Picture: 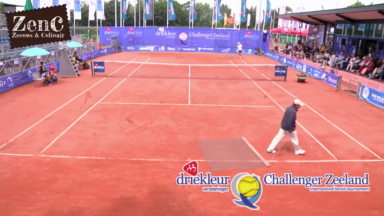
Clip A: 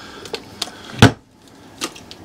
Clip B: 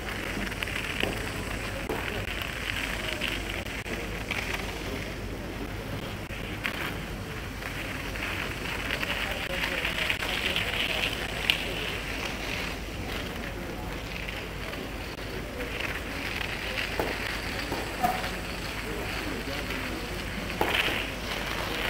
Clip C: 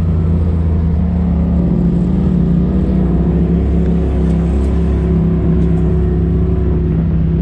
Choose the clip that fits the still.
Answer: B